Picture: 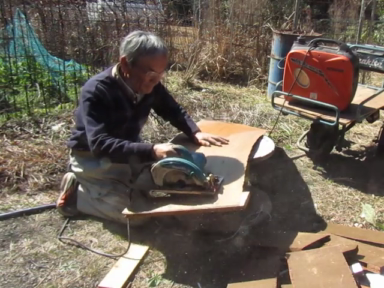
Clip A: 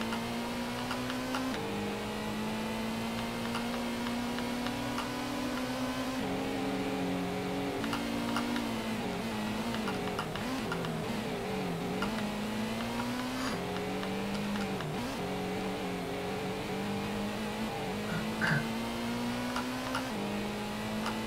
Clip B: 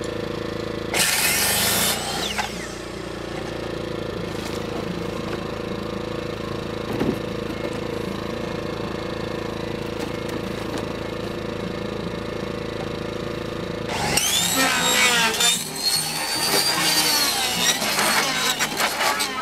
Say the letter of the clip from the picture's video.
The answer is B